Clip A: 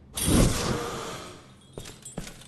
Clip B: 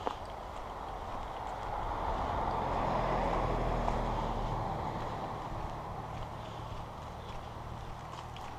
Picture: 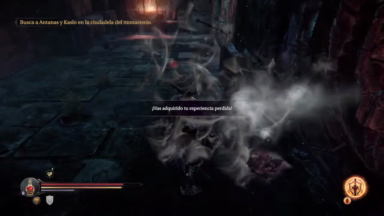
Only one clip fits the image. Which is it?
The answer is A